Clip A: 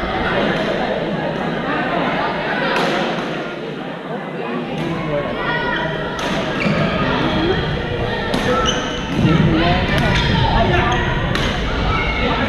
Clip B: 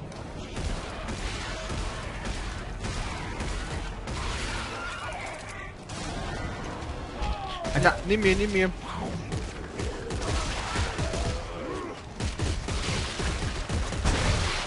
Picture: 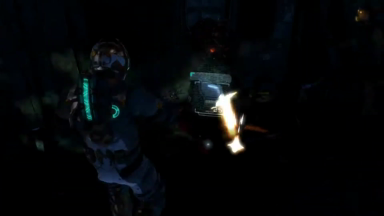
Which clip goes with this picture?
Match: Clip B